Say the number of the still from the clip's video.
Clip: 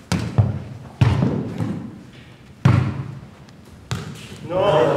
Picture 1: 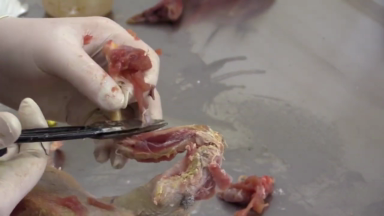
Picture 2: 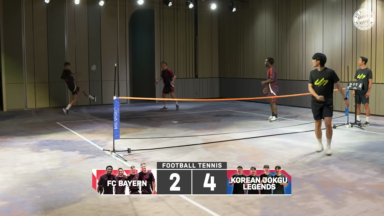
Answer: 2